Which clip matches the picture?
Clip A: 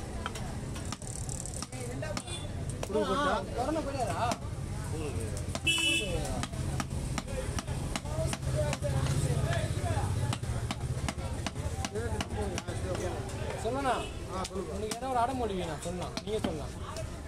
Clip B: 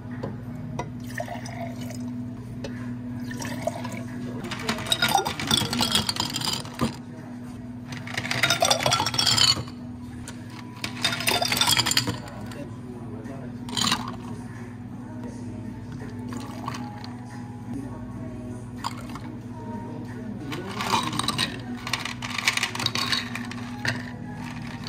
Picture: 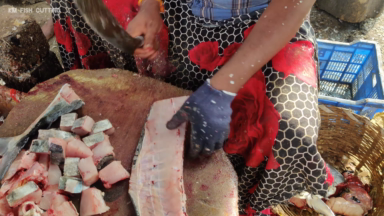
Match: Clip A